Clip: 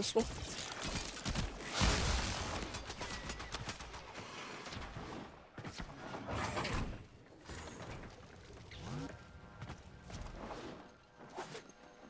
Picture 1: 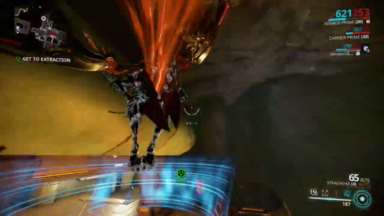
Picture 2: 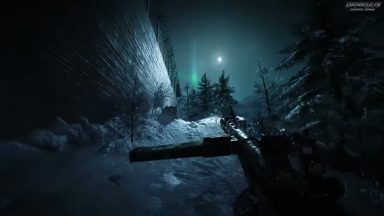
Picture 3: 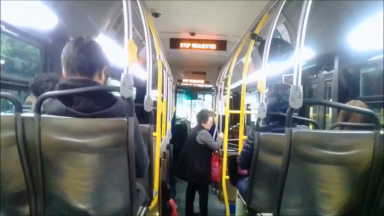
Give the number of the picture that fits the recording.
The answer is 1